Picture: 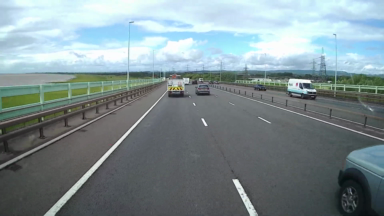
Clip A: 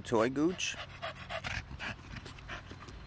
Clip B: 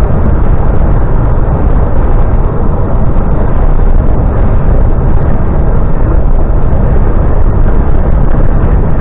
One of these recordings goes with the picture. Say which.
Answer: B